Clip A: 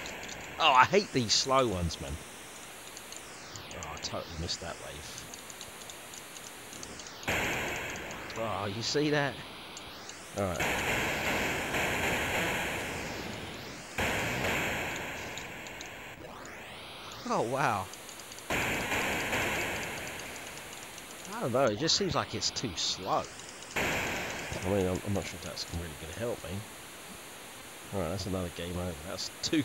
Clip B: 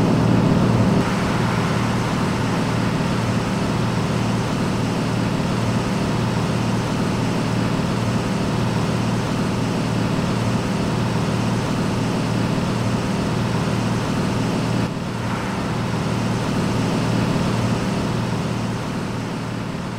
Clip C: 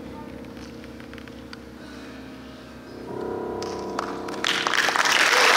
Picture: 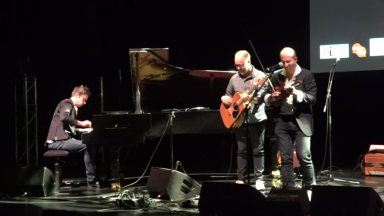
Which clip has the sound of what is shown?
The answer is C